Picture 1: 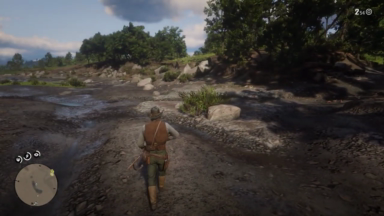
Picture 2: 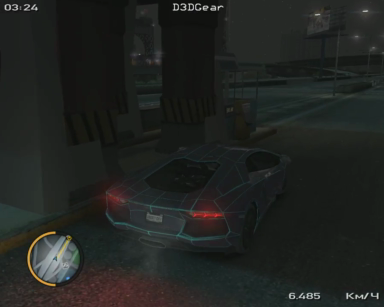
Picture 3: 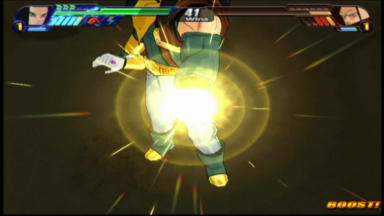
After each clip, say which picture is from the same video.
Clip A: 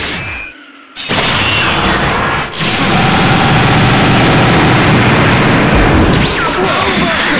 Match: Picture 3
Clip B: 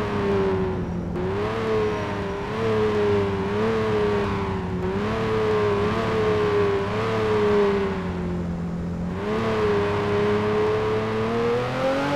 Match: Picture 2